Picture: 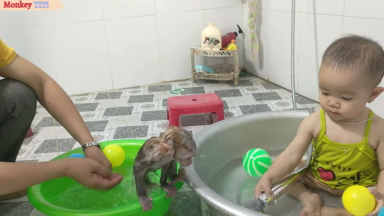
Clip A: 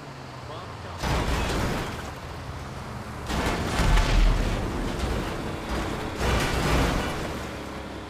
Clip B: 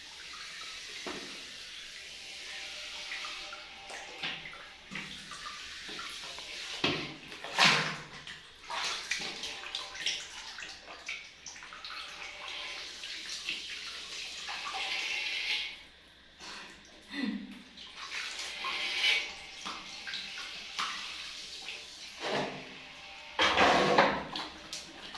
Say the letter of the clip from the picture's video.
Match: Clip B